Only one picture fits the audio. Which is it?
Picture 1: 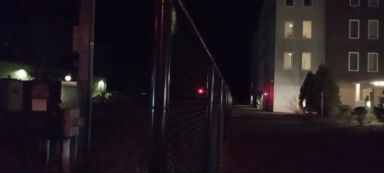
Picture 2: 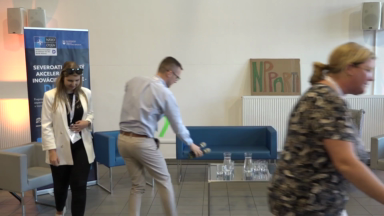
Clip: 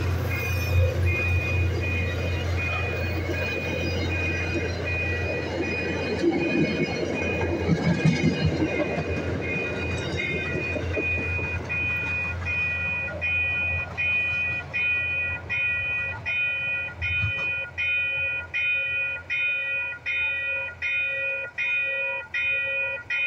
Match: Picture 1